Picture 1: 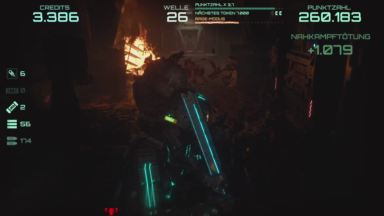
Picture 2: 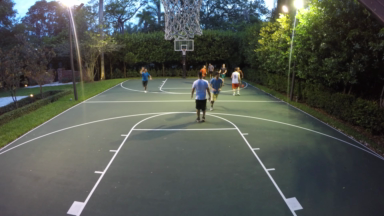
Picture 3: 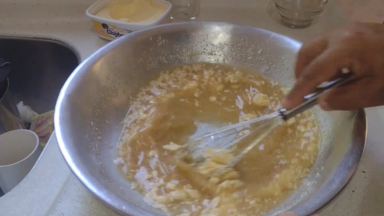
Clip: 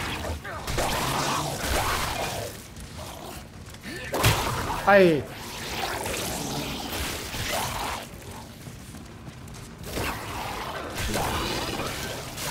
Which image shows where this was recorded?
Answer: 1